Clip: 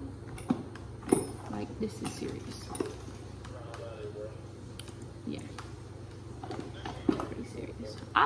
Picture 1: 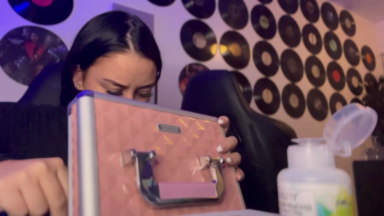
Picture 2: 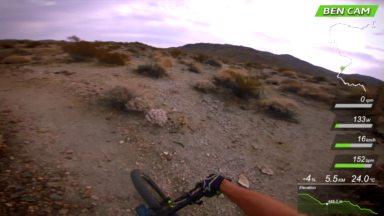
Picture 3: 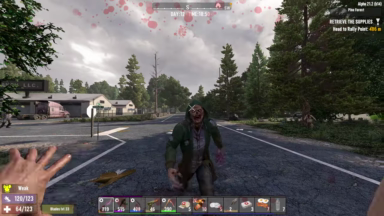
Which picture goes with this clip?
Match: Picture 1